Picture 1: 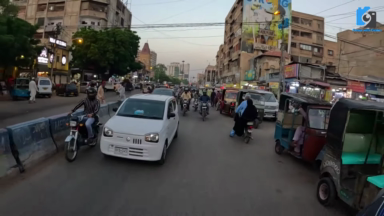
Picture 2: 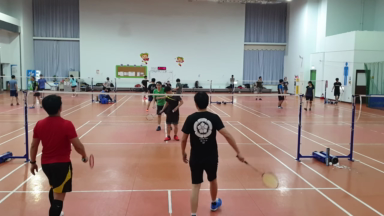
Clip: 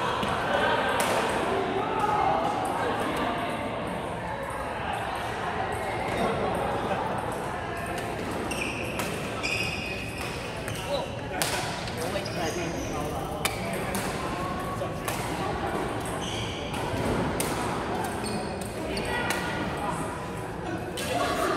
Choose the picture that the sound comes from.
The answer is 2